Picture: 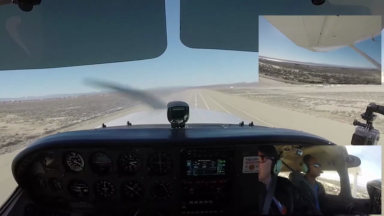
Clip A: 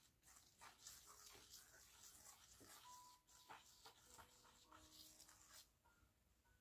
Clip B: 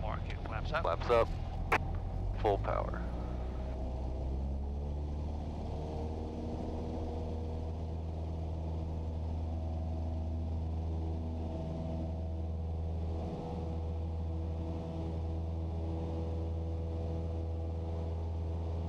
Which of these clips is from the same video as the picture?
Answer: B